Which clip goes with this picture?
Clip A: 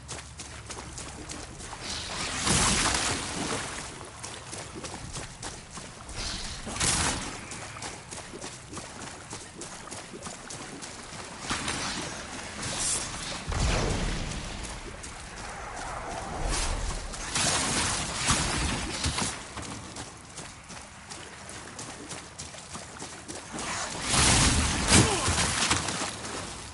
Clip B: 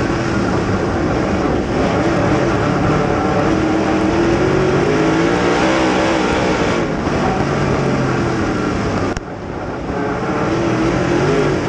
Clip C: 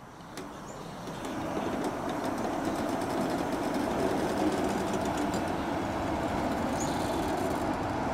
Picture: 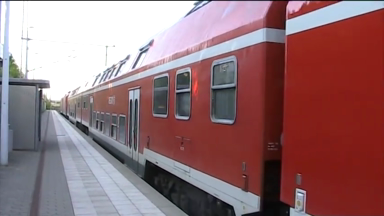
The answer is C